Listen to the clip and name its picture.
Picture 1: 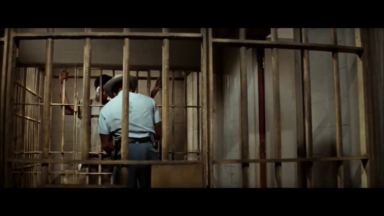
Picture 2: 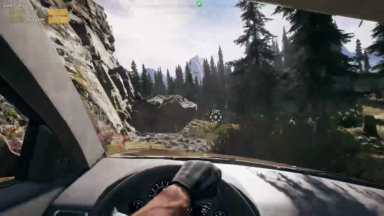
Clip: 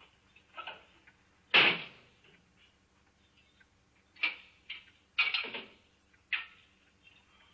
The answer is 1